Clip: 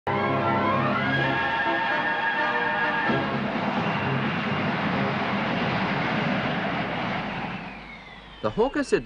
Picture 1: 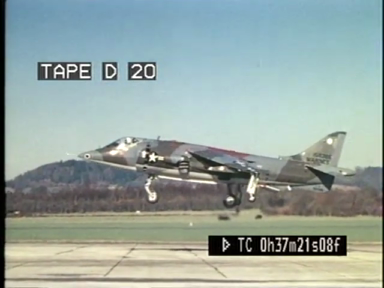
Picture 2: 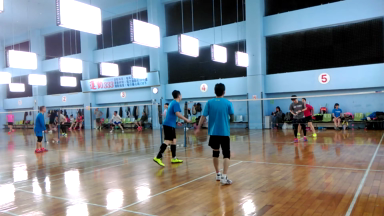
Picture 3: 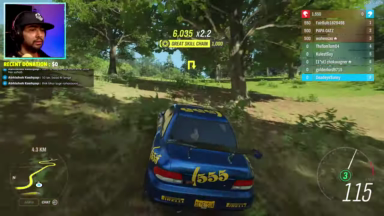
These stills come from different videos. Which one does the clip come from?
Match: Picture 1